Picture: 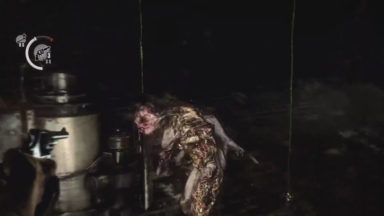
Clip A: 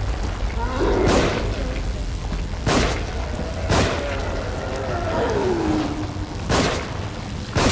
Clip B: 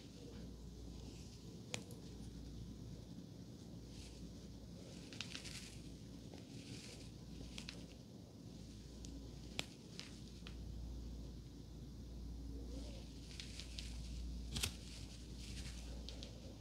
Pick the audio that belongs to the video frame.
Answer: A